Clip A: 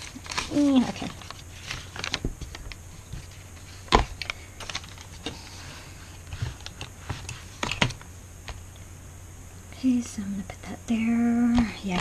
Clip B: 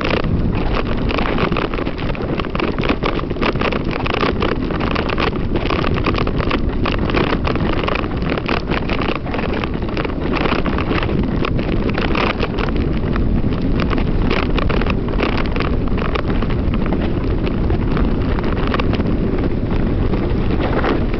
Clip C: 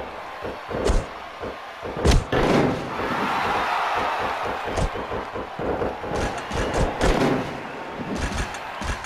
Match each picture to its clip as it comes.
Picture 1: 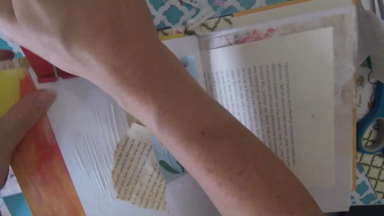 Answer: A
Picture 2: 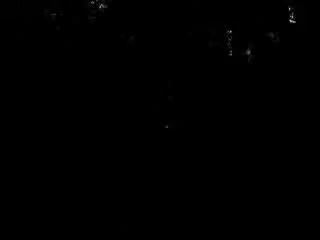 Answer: B